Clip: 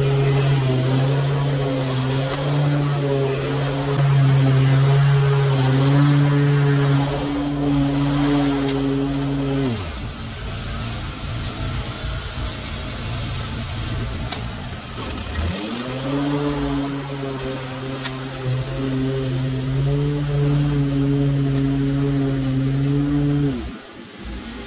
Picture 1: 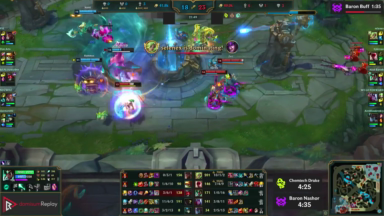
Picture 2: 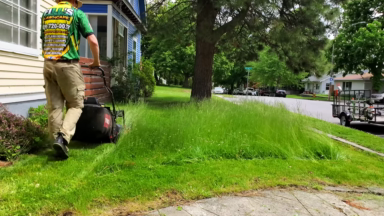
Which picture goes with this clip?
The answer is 2